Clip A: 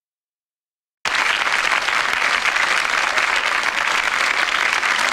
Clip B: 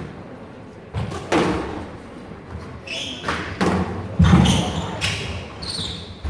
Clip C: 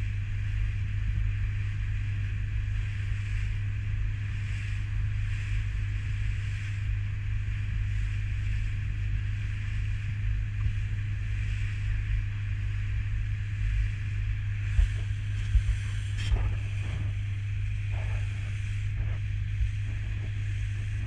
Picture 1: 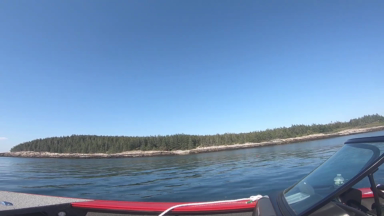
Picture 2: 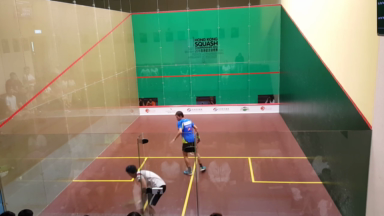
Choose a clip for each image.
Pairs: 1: C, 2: B